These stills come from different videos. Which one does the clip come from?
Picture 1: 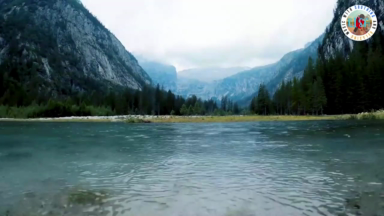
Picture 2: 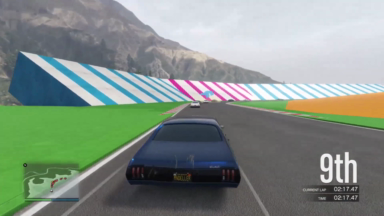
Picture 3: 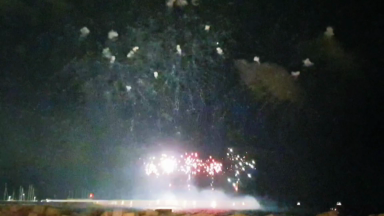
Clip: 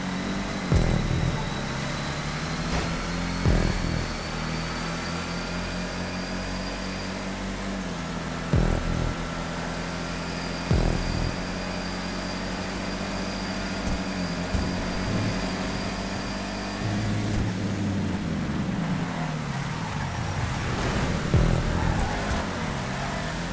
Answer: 2